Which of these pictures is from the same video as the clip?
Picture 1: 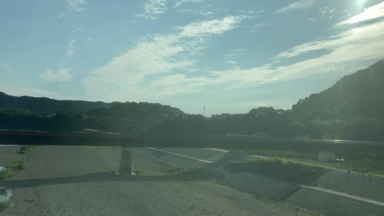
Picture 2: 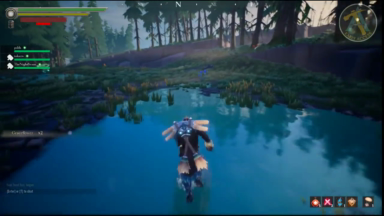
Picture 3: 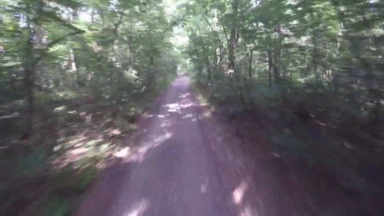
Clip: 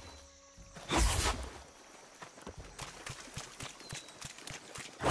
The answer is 2